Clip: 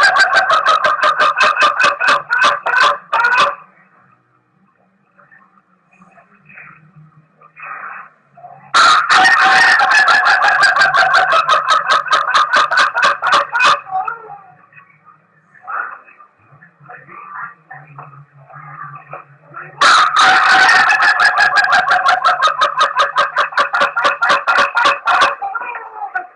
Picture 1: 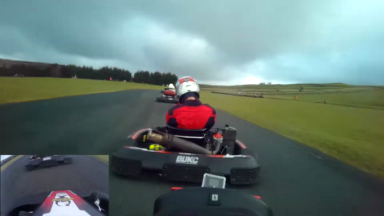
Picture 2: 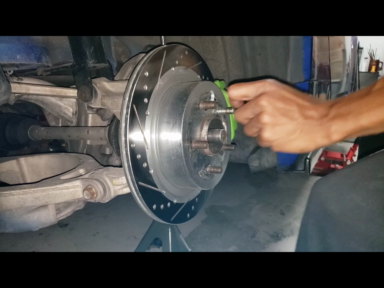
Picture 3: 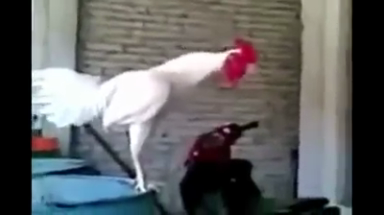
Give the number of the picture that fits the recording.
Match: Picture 3